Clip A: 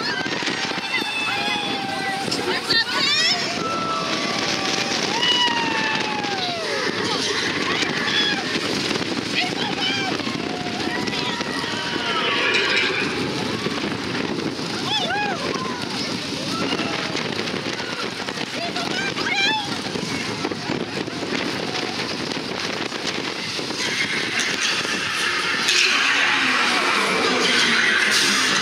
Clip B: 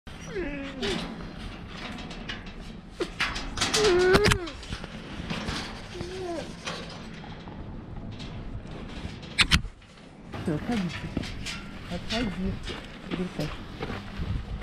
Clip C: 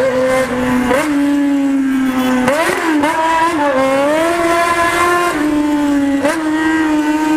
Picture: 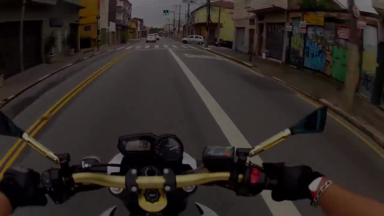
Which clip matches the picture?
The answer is C